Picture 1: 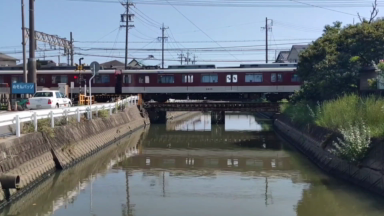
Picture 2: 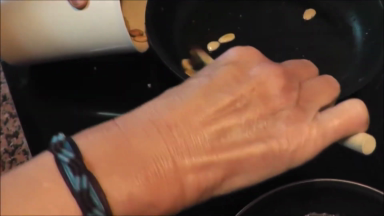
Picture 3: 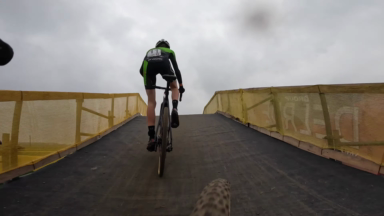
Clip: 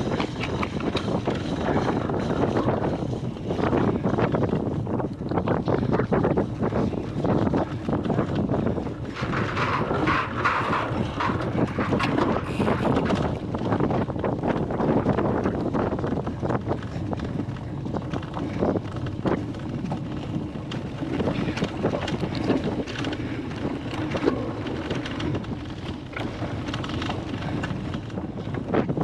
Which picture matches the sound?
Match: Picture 3